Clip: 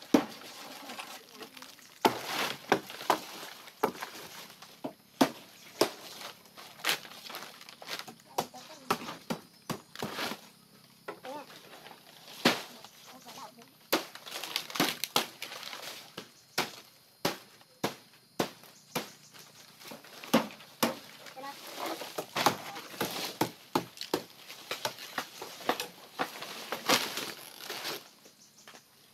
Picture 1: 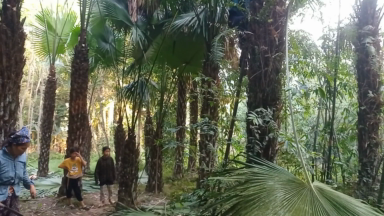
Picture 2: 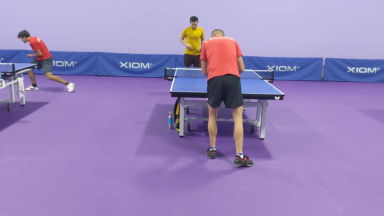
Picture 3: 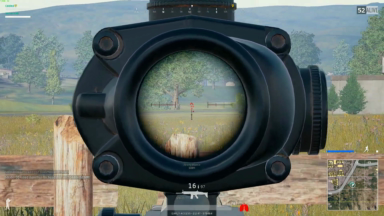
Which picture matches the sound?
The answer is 1